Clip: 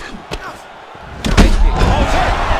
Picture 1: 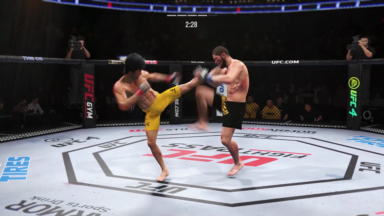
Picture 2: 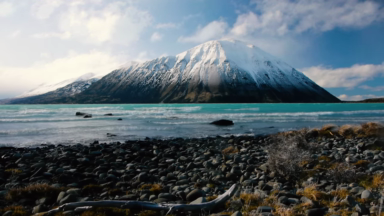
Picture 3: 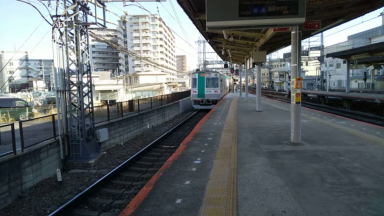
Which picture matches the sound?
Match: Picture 1